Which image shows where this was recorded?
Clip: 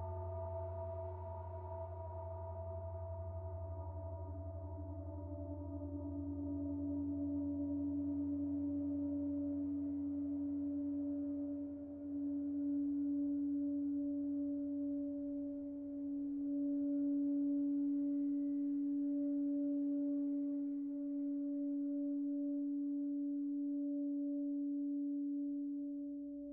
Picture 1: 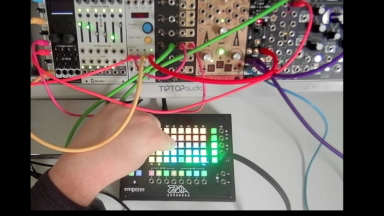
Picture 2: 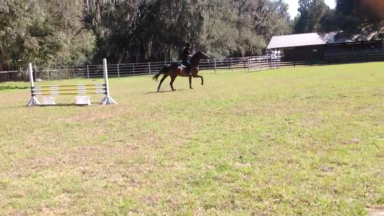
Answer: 1